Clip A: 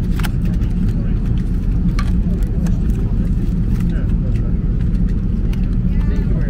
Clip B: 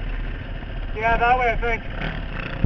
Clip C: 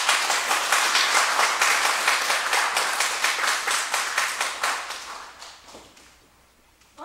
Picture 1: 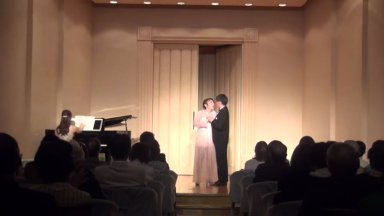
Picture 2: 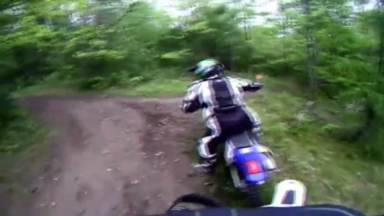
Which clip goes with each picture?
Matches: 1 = C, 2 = B